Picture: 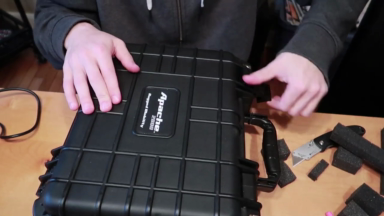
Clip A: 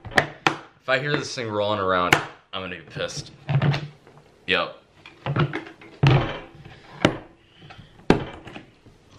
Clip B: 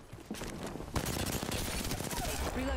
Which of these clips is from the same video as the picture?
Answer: A